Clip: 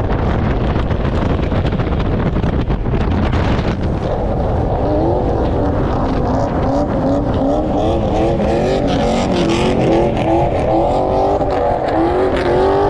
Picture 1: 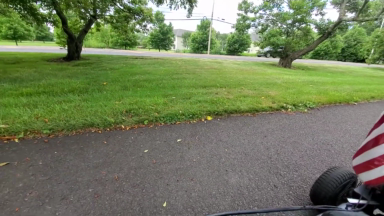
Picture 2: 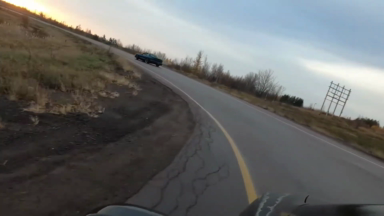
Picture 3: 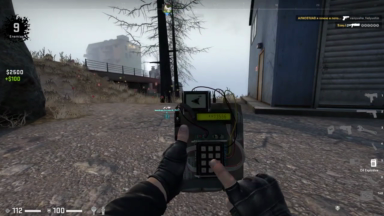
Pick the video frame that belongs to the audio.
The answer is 2